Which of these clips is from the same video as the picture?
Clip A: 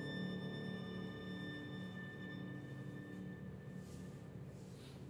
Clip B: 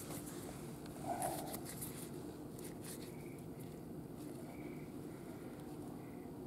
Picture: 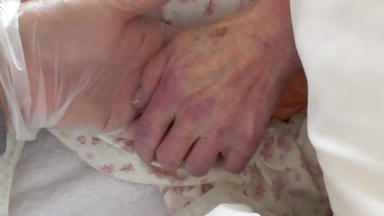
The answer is B